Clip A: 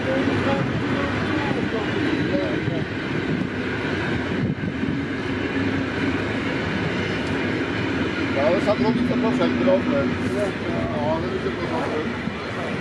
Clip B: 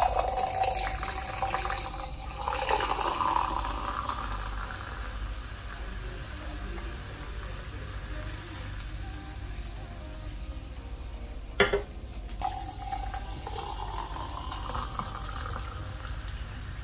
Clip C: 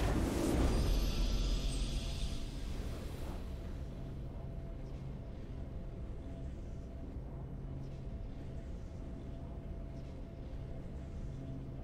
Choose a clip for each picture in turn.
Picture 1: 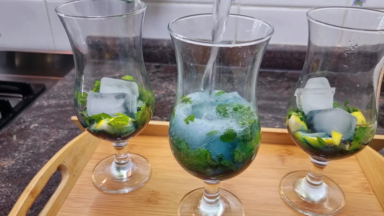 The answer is B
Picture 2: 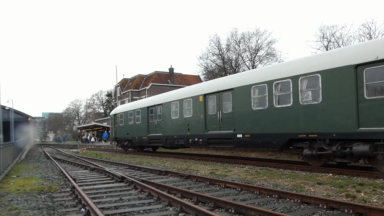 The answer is A